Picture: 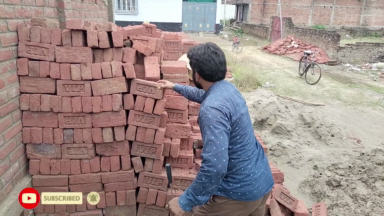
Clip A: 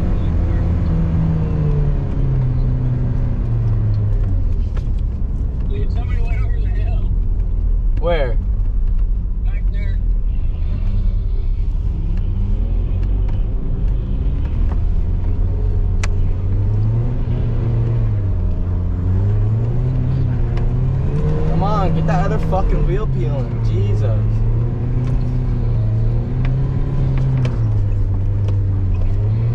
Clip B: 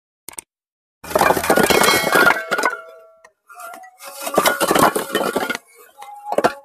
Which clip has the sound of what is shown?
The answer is B